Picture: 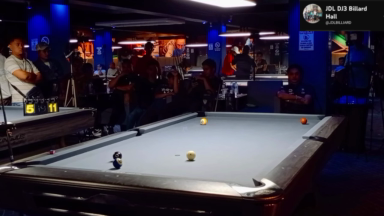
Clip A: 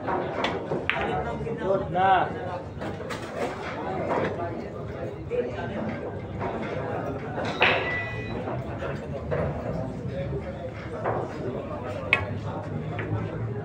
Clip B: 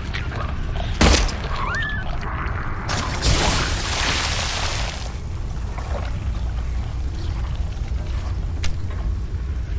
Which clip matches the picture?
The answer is A